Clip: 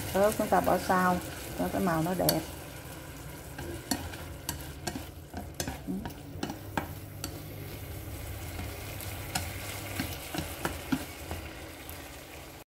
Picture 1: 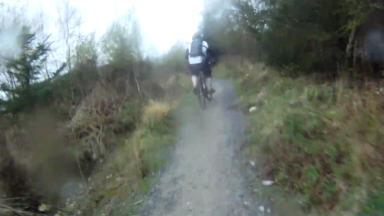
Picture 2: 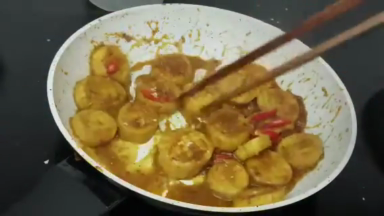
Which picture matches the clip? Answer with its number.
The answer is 2